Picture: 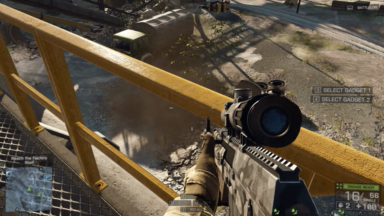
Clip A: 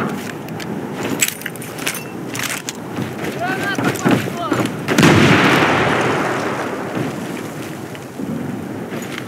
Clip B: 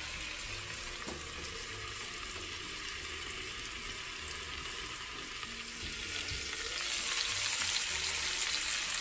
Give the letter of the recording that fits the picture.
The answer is A